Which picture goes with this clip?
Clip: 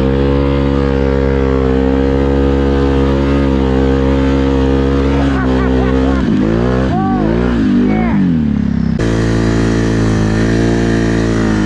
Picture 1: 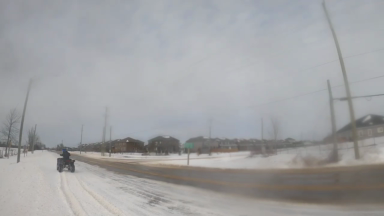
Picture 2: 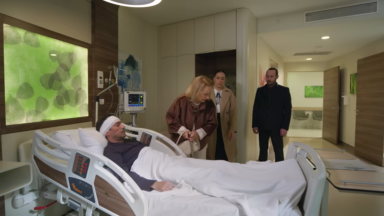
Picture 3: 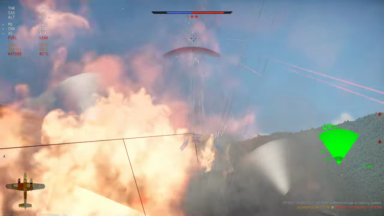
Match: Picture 1